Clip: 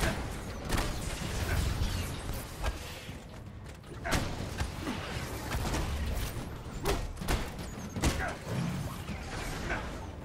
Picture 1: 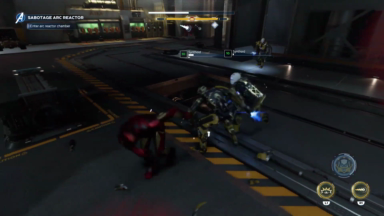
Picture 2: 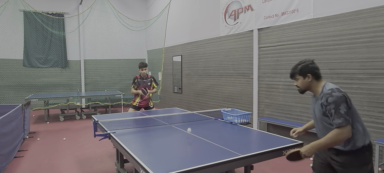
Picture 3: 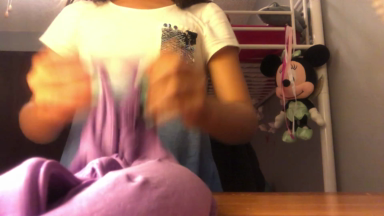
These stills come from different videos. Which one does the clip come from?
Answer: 1